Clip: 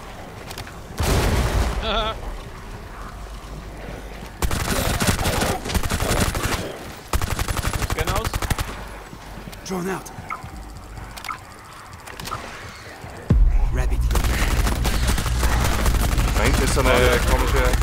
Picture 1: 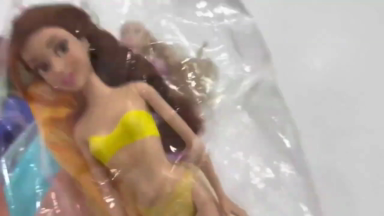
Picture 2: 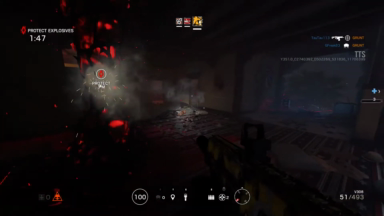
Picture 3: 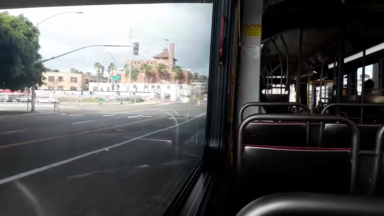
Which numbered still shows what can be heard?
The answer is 2